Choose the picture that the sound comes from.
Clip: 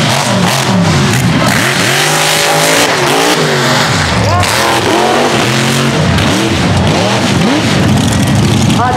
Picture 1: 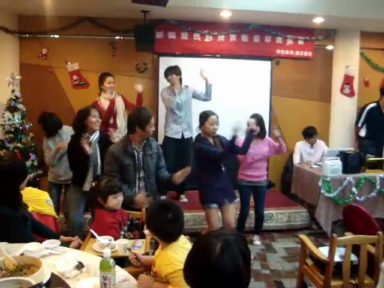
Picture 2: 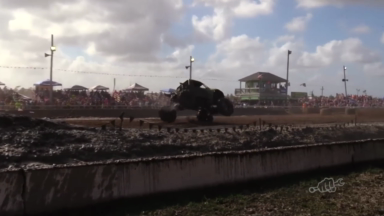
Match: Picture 2